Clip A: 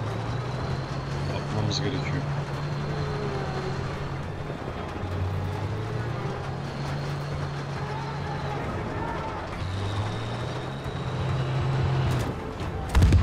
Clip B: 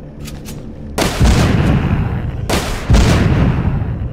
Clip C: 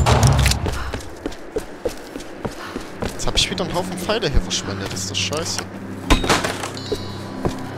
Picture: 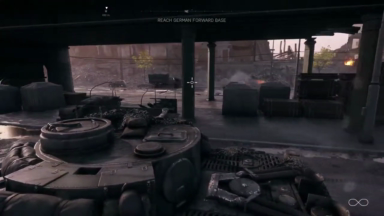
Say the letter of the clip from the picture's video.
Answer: A